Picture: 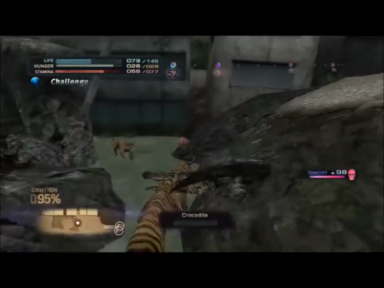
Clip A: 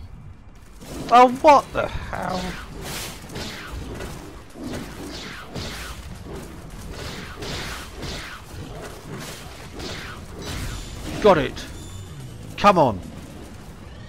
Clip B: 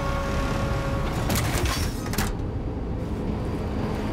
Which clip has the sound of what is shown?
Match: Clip A